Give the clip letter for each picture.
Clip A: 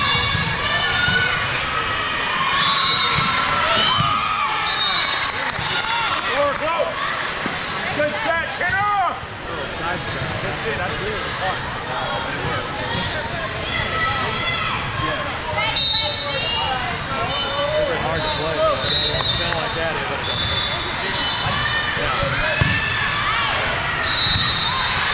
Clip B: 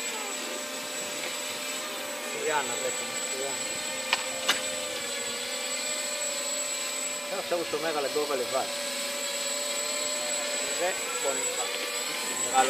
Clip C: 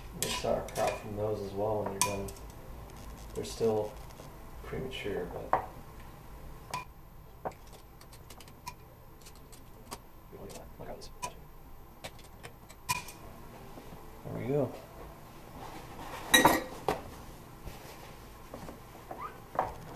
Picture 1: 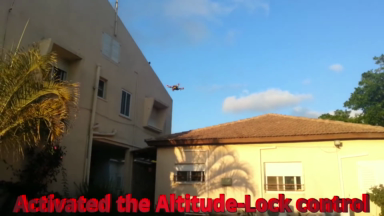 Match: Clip B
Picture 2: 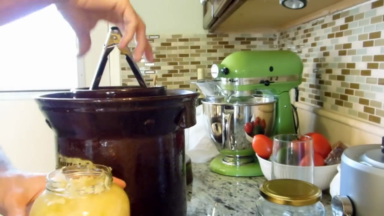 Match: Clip C